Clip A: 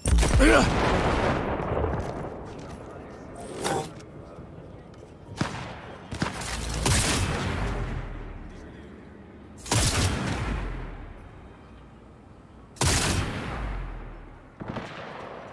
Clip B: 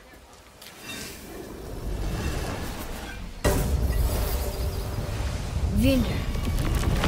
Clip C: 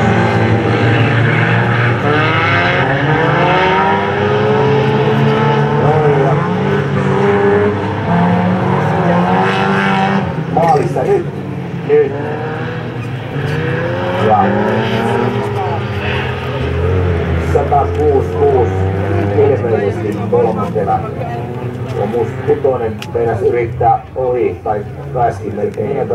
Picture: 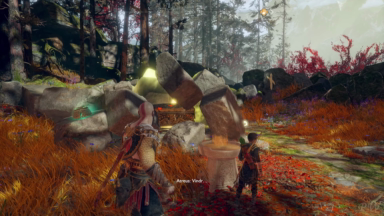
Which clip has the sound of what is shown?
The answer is B